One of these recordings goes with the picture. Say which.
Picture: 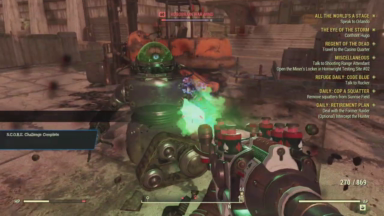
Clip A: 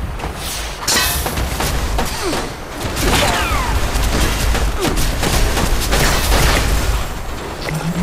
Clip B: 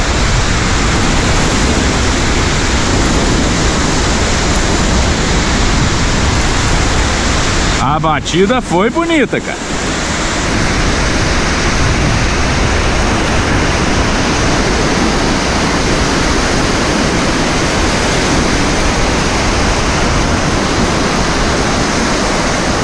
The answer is A